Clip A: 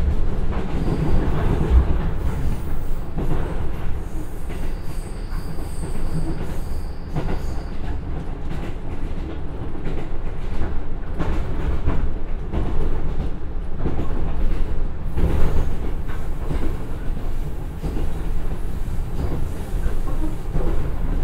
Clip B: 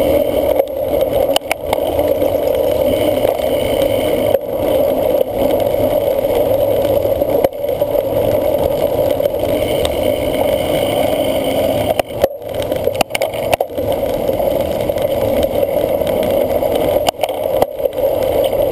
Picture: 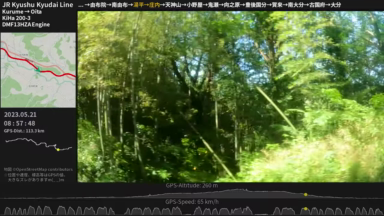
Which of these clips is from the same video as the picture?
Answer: A